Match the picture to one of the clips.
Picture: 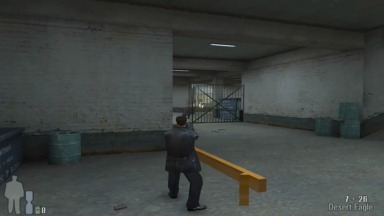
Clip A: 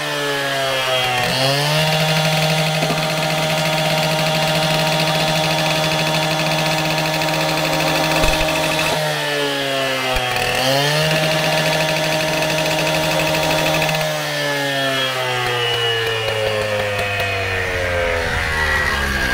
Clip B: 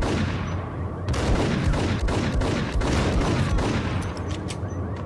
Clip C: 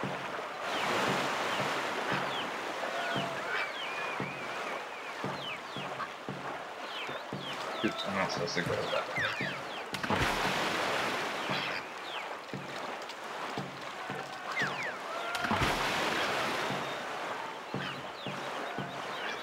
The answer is B